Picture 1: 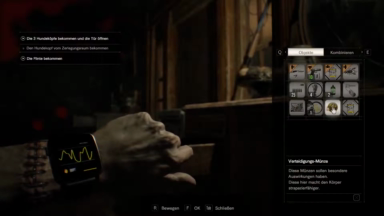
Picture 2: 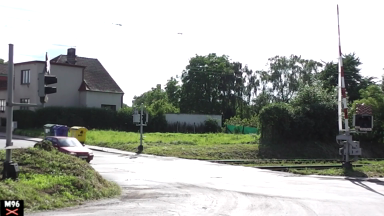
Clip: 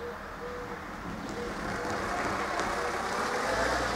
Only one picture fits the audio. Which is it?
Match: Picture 2